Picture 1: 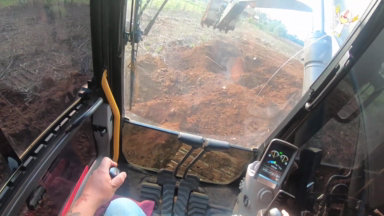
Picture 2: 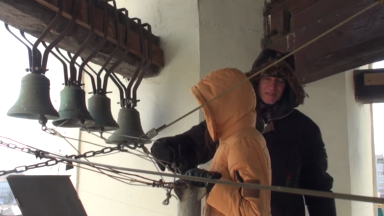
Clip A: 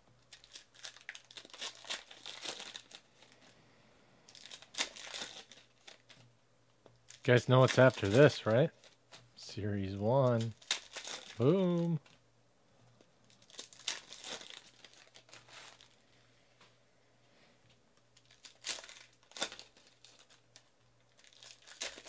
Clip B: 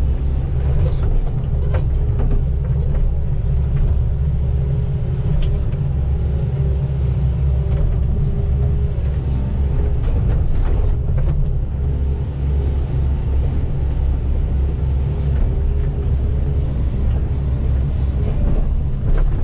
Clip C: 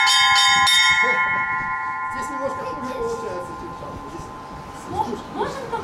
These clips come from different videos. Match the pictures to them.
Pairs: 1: B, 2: C